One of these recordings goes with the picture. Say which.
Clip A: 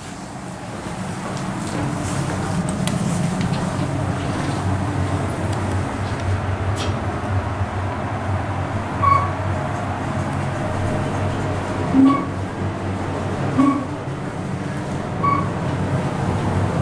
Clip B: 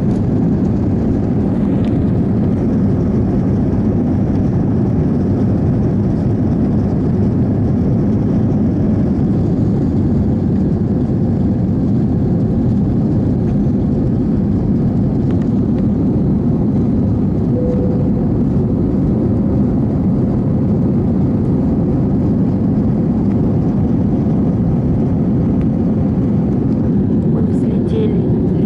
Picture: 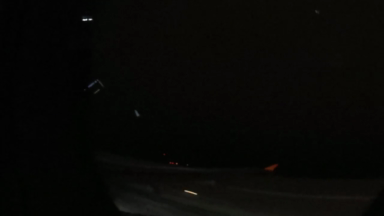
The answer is B